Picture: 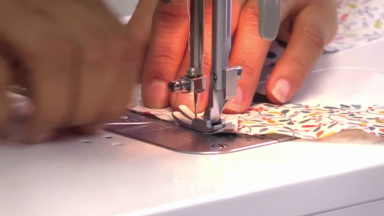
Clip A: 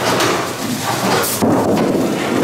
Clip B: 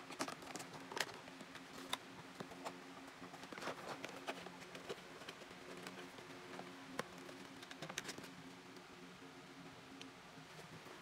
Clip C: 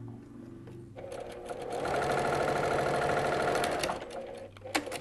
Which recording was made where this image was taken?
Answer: C